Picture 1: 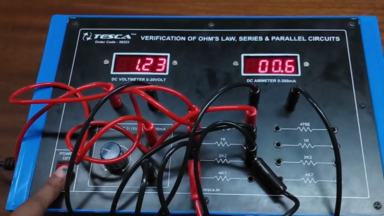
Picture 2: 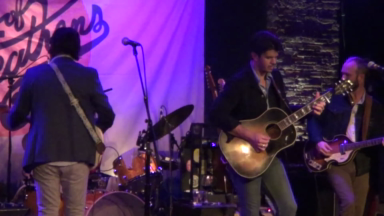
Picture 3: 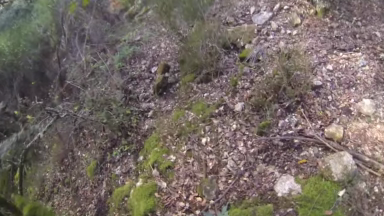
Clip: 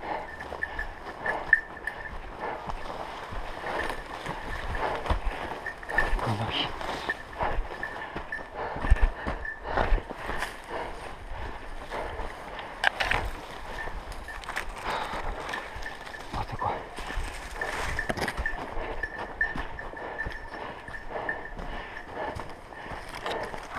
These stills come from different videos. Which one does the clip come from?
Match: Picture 3